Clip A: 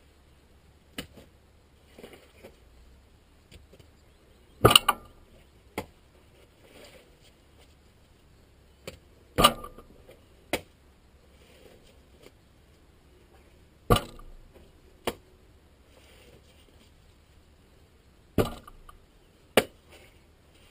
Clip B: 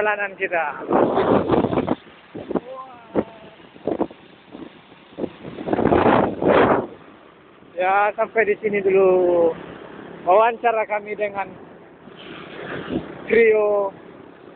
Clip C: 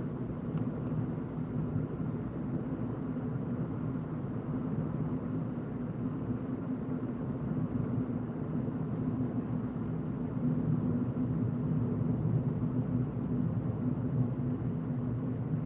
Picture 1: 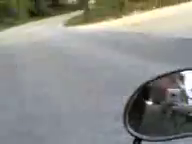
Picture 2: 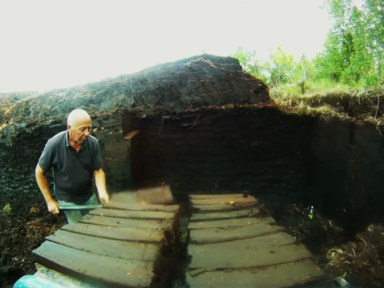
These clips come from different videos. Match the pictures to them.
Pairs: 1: B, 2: A